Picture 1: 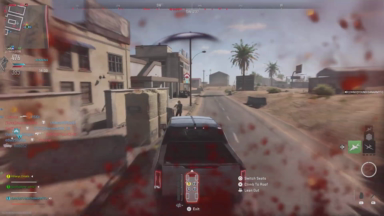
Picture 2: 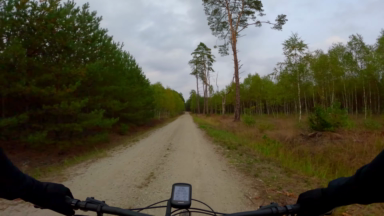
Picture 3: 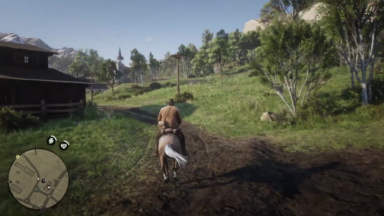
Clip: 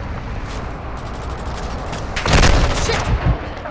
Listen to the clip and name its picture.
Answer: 1